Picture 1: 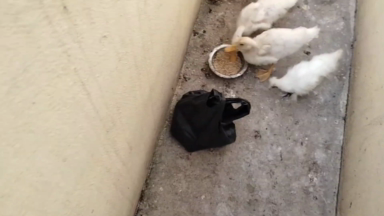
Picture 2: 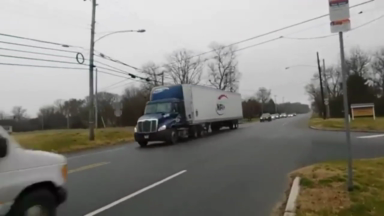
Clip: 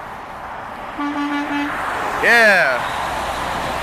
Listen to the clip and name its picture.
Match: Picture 2